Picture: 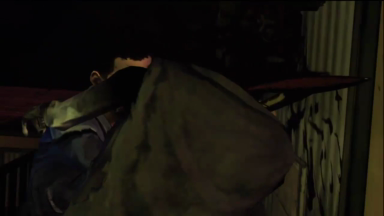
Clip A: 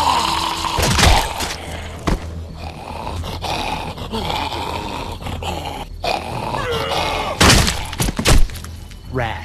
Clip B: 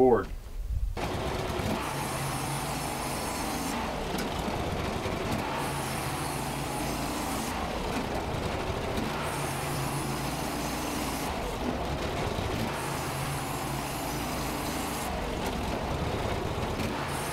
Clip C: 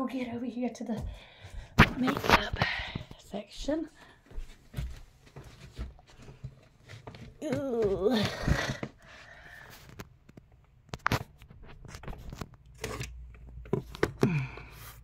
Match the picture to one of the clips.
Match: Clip A